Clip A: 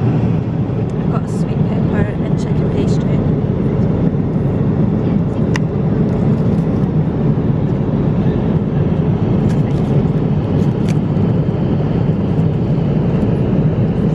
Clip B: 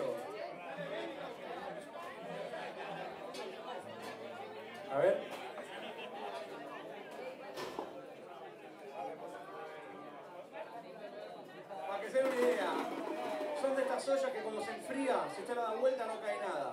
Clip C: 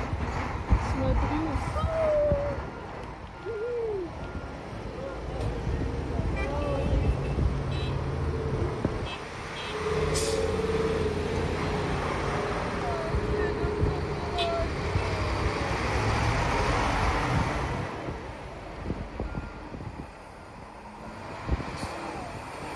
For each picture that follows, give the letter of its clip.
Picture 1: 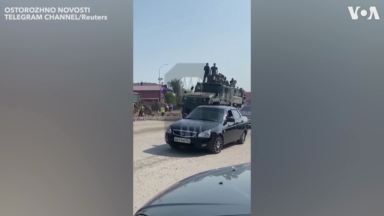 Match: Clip C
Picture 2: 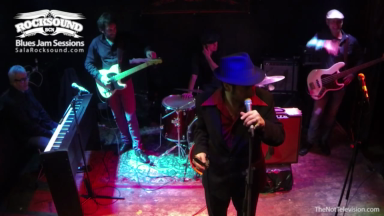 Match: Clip B